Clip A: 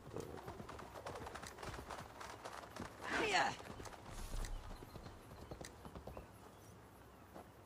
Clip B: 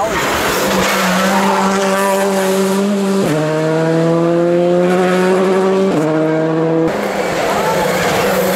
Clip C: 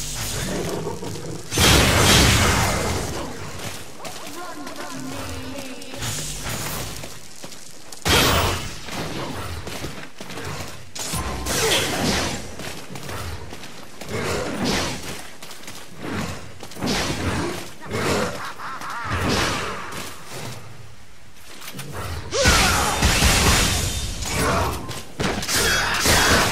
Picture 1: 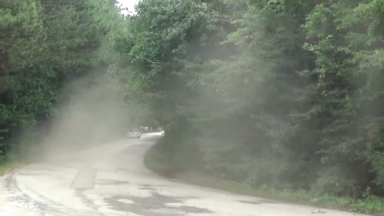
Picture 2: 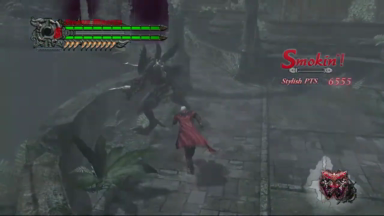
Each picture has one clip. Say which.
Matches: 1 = B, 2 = C